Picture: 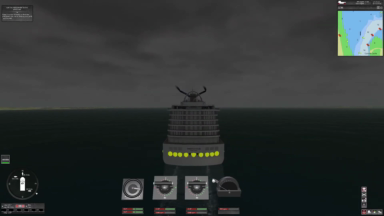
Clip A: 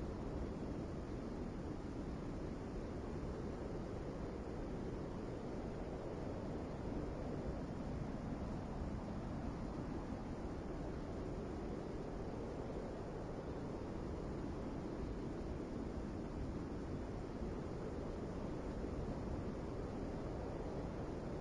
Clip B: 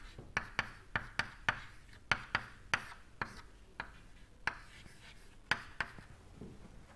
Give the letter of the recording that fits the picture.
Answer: A